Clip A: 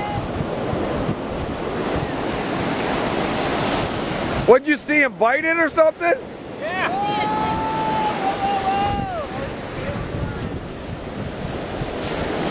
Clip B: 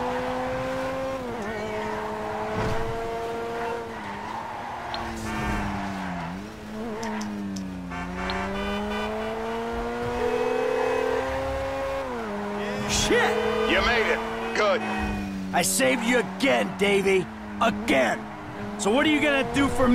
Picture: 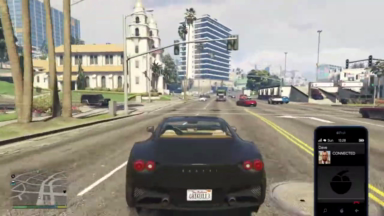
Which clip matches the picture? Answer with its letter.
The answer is B